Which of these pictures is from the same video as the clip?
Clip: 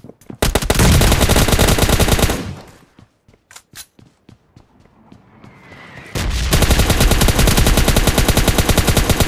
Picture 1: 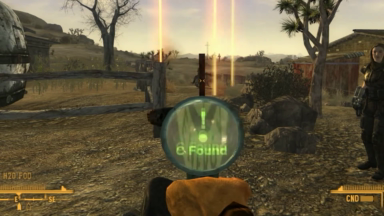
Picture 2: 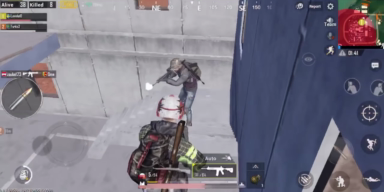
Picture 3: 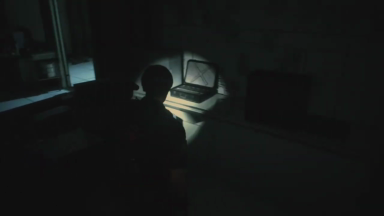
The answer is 2